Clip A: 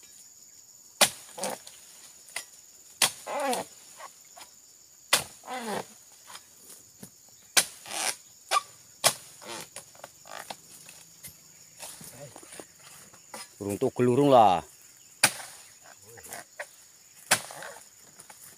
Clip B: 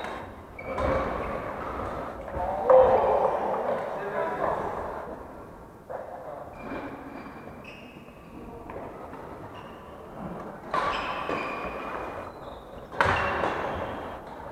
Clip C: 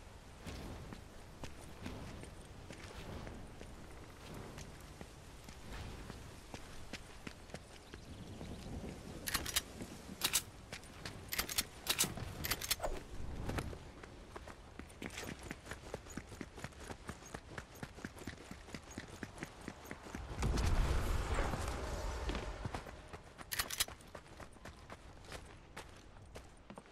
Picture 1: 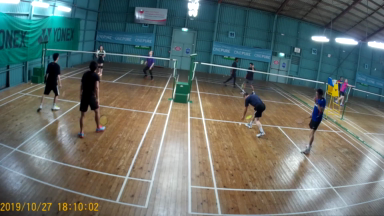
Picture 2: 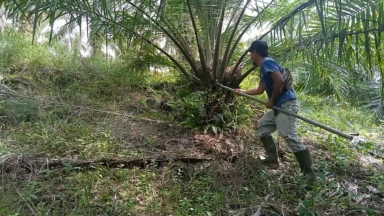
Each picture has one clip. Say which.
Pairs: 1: B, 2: A